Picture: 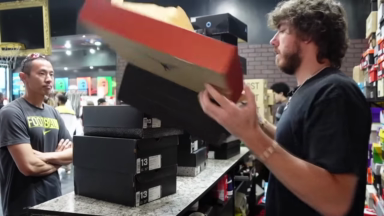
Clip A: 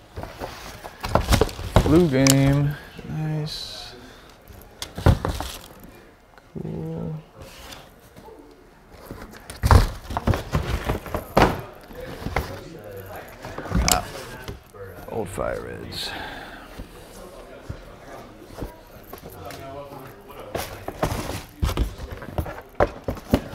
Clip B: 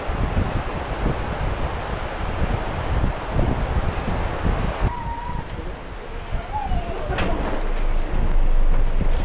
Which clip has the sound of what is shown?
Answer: A